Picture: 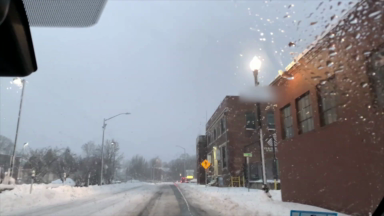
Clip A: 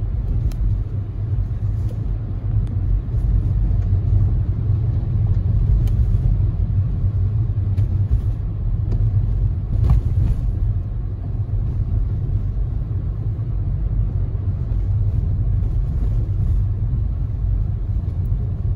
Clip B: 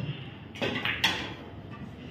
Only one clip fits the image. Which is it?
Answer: A